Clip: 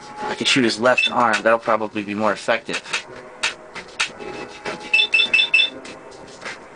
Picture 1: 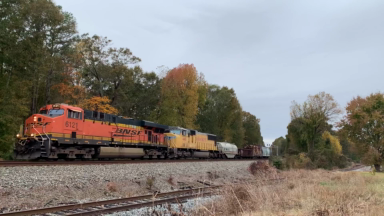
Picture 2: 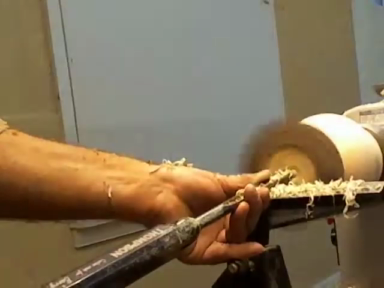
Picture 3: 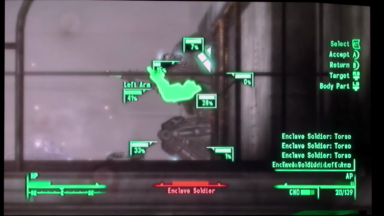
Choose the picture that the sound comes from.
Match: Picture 3